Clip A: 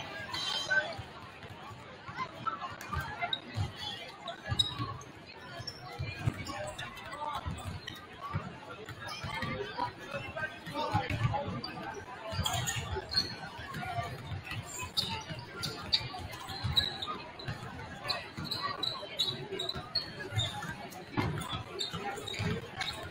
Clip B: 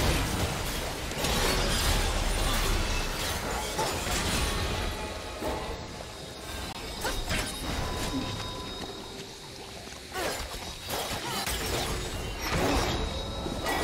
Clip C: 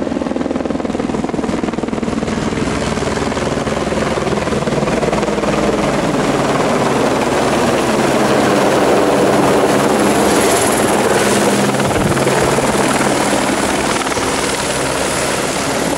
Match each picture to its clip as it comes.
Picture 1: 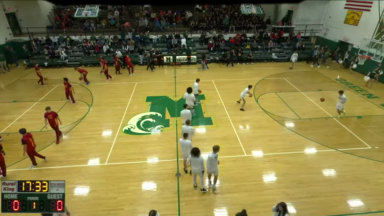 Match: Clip A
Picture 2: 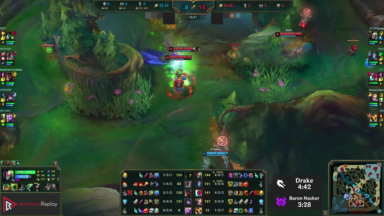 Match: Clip B